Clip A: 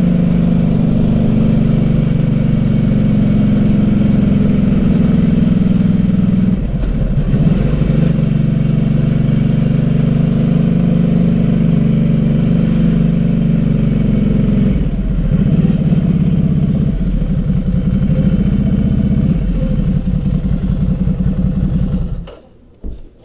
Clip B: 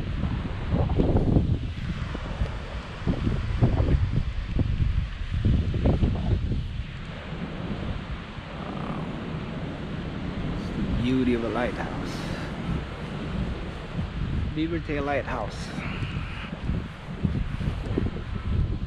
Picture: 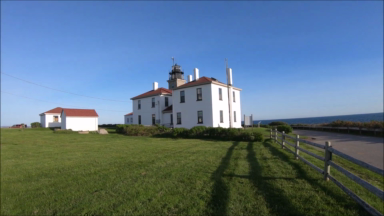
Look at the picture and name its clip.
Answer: B